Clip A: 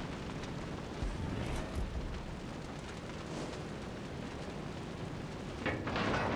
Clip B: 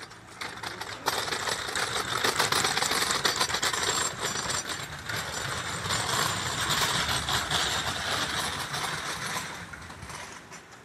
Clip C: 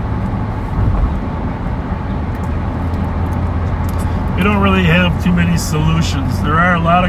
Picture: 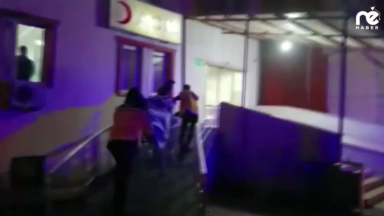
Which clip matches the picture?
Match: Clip B